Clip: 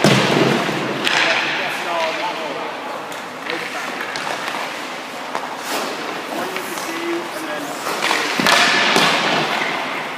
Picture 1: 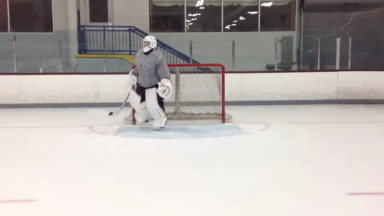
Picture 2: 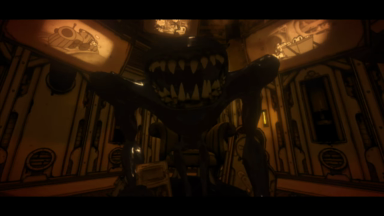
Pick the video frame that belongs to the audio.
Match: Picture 1